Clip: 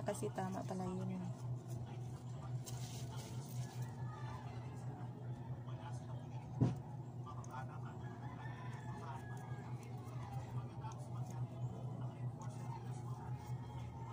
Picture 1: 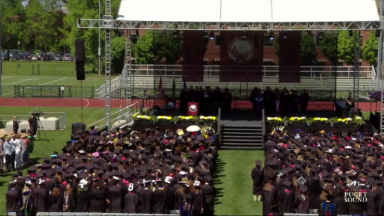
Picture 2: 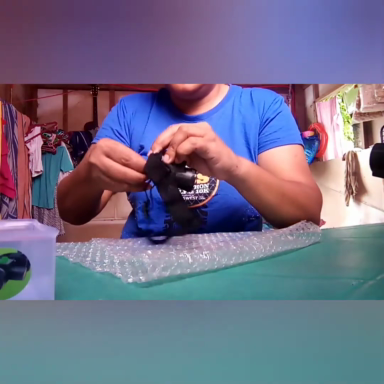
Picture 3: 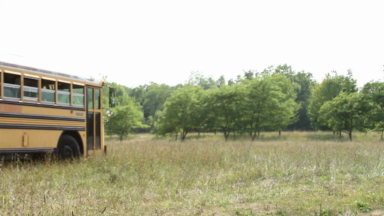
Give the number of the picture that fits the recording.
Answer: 2